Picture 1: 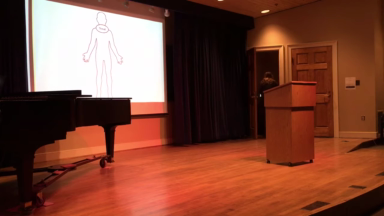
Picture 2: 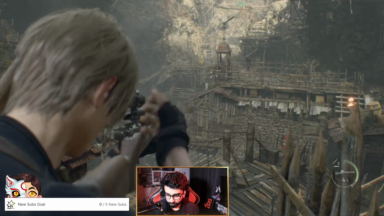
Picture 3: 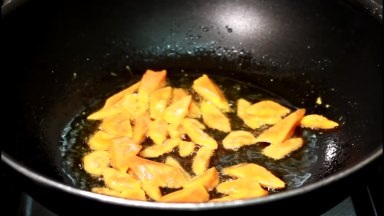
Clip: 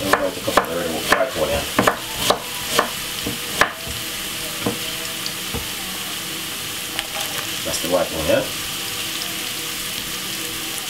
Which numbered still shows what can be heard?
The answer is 3